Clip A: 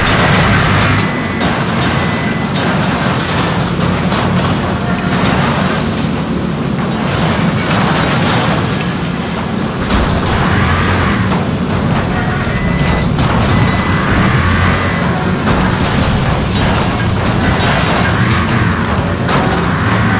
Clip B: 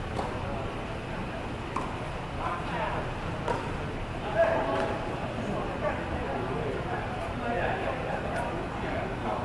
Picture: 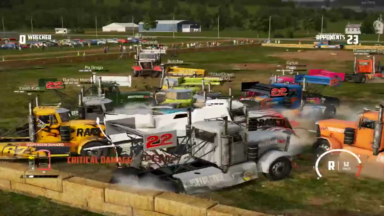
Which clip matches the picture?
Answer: A